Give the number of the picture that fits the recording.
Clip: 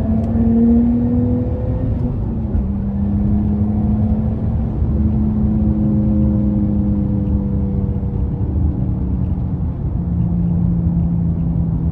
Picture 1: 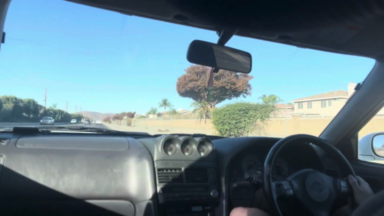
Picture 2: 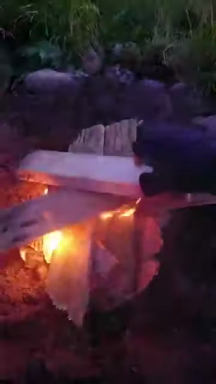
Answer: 1